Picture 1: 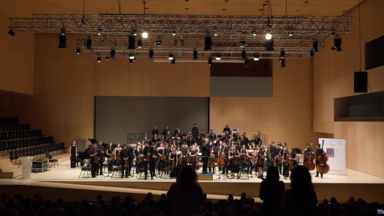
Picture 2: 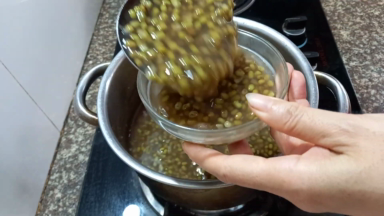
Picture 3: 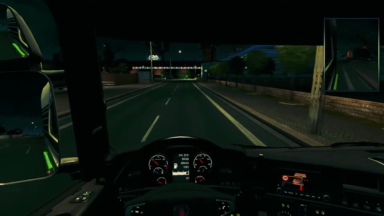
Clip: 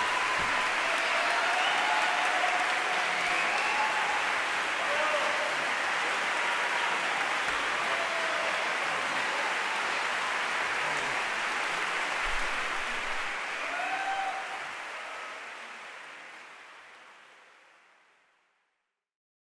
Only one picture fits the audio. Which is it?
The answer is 1